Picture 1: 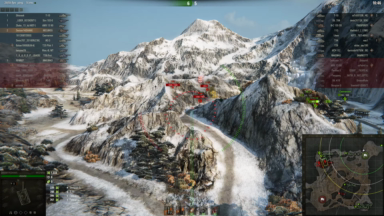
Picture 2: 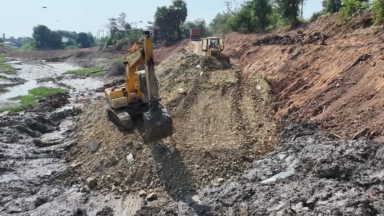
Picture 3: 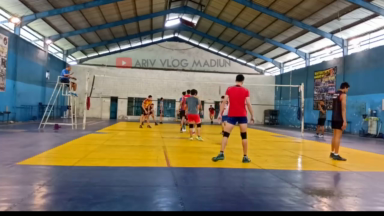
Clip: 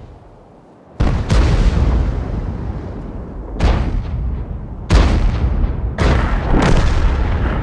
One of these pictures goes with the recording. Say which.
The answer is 1